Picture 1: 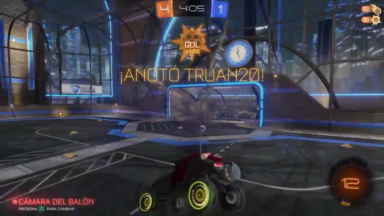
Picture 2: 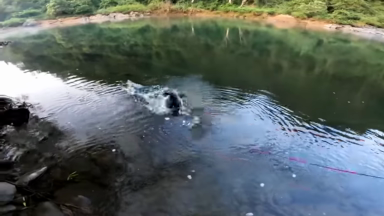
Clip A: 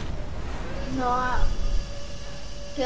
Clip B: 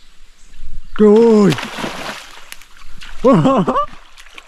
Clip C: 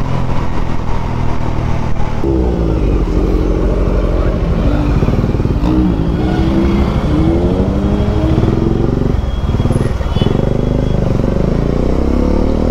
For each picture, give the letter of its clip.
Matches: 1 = A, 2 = B